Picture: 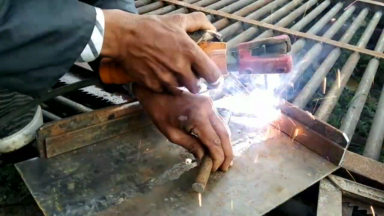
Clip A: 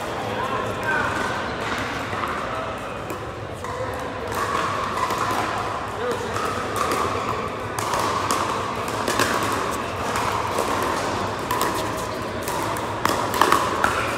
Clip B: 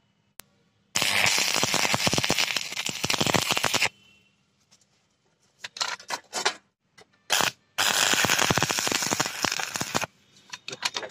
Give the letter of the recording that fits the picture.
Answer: B